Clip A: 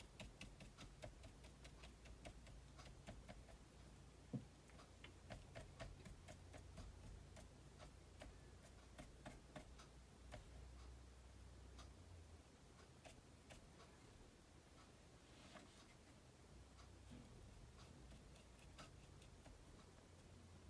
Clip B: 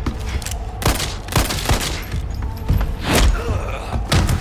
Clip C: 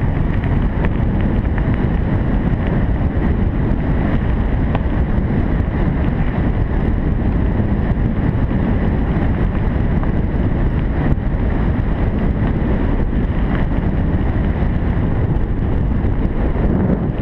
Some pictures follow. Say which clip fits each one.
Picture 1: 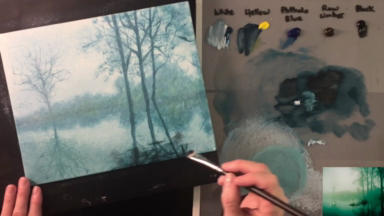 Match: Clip A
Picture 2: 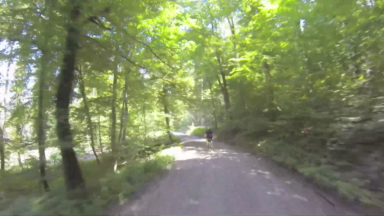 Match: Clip C